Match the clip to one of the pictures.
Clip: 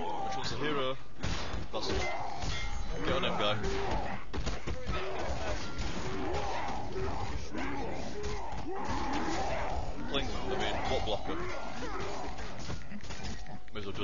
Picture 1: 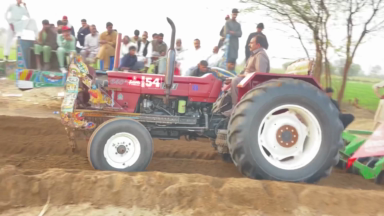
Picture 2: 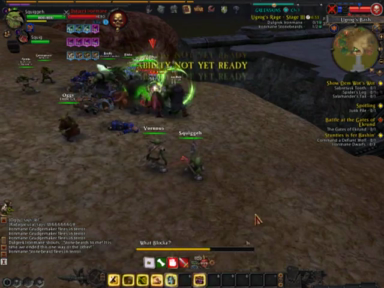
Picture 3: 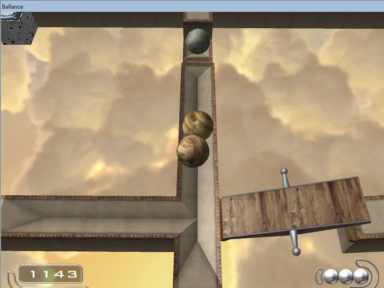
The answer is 2